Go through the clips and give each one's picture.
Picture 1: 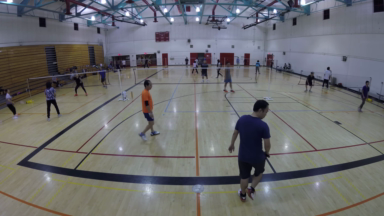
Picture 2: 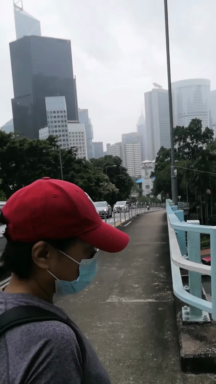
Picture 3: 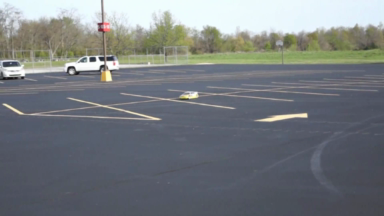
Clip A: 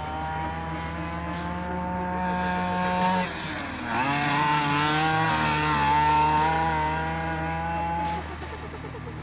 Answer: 3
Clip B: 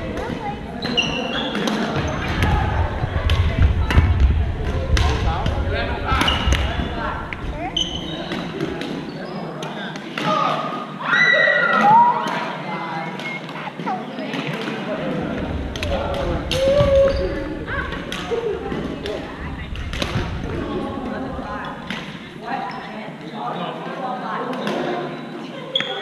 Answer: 1